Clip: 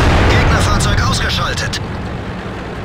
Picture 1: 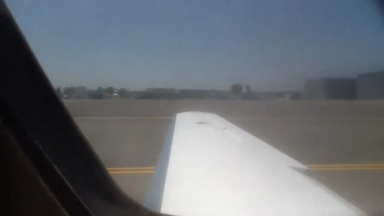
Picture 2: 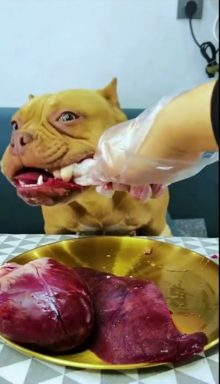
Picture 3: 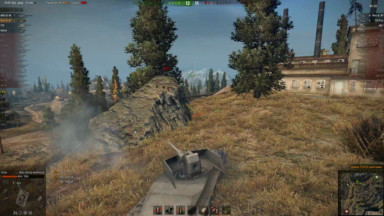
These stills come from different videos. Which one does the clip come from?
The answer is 3